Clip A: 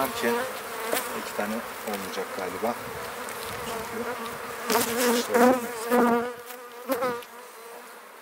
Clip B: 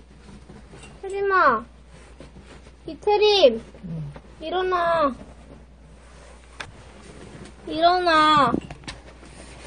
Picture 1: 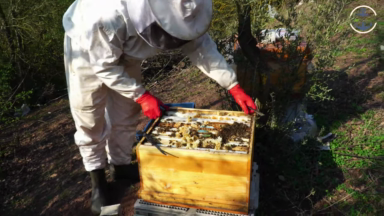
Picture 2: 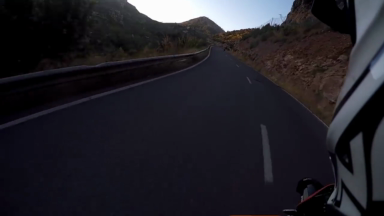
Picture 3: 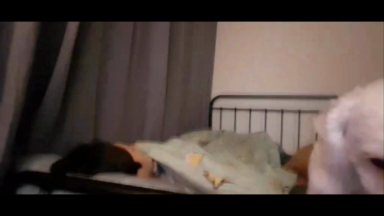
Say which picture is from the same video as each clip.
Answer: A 1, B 3